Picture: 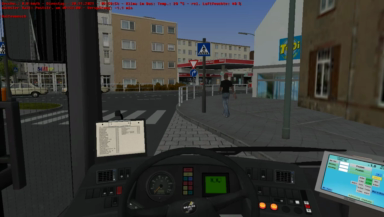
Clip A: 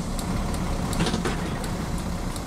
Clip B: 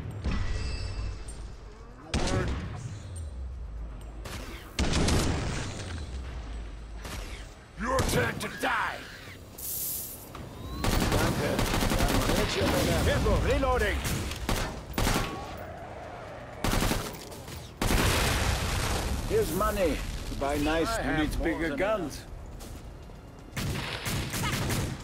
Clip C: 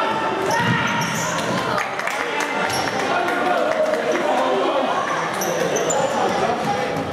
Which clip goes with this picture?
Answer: A